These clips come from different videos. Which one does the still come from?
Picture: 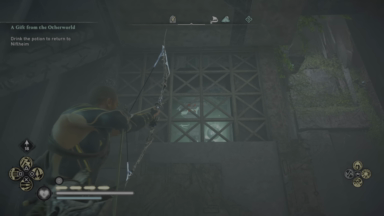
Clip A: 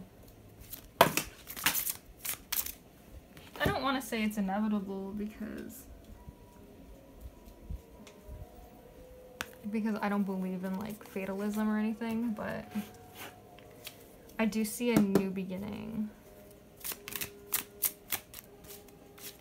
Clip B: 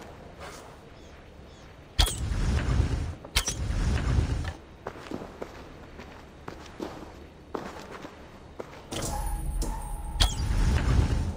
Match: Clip B